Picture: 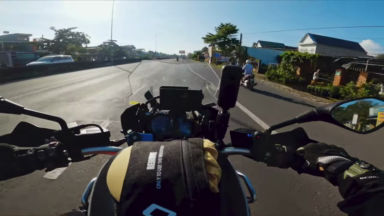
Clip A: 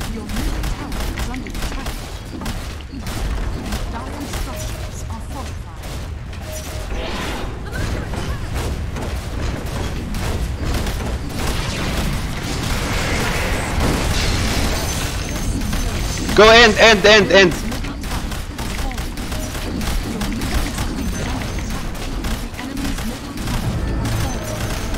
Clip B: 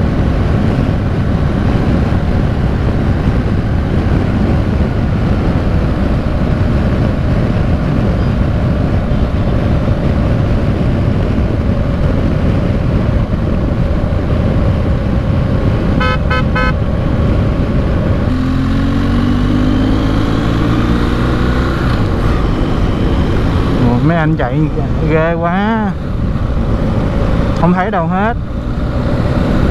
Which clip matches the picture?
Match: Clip B